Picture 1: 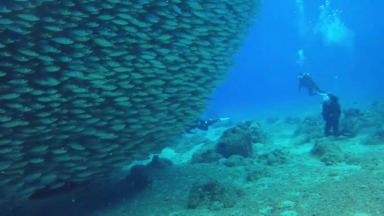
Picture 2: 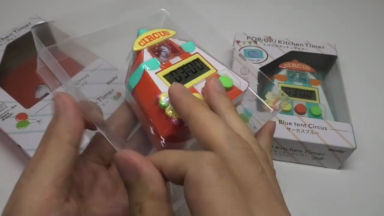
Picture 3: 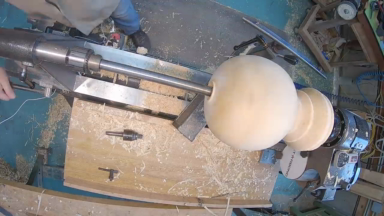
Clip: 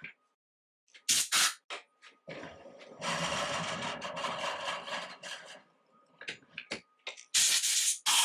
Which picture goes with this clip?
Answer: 3